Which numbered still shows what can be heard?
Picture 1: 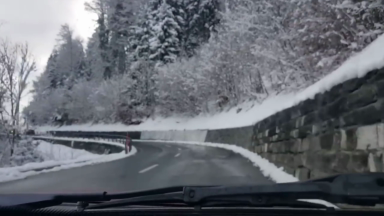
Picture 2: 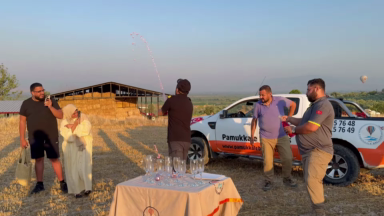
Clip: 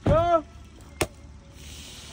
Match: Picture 2